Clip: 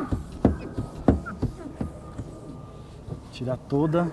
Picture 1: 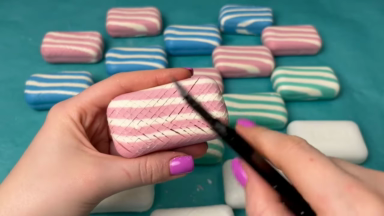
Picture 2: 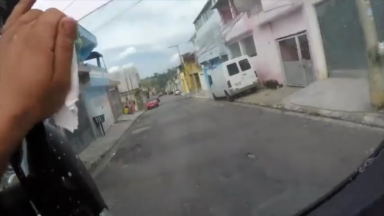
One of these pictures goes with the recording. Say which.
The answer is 2